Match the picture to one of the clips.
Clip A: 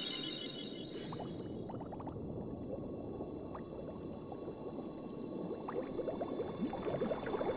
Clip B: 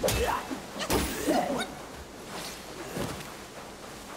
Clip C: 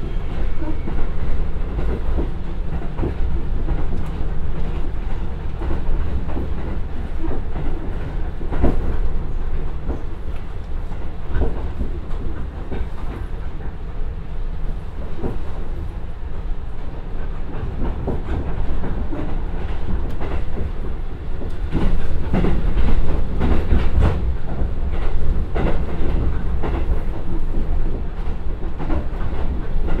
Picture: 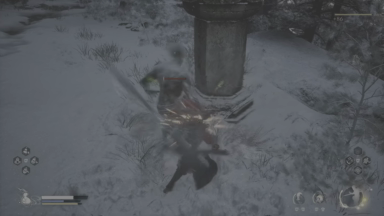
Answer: B